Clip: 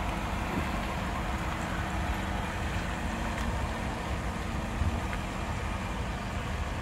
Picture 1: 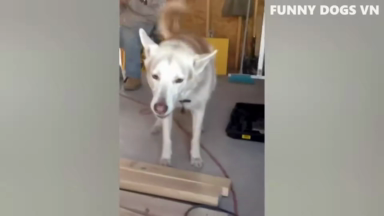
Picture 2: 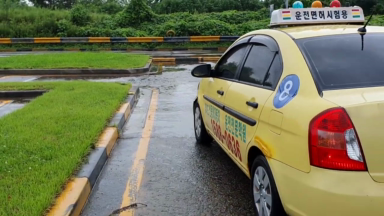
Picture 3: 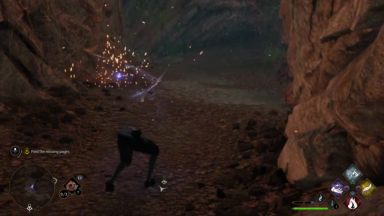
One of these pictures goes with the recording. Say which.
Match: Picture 2